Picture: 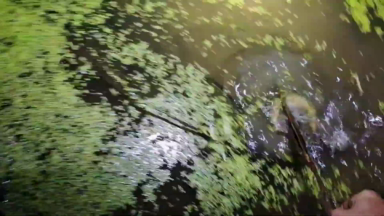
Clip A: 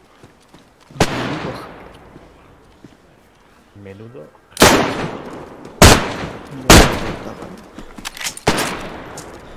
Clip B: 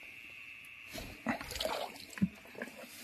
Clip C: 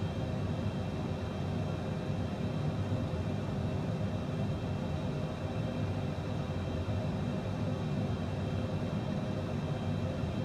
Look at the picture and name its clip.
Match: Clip B